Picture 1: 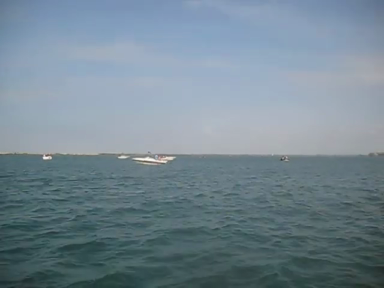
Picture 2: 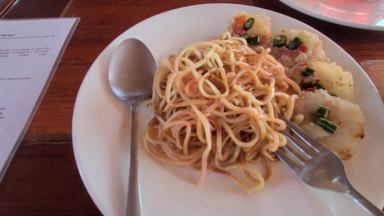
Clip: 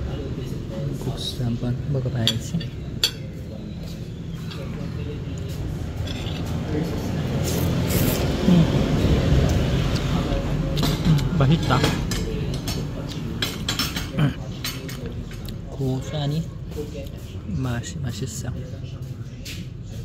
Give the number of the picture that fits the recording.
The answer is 2